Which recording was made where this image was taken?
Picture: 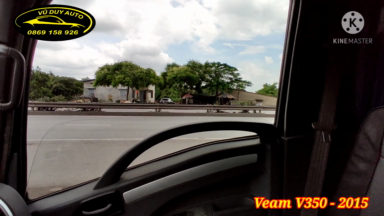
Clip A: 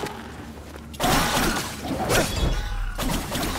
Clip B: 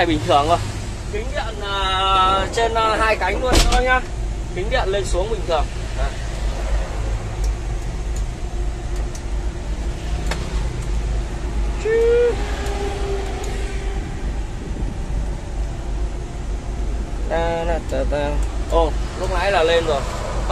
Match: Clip B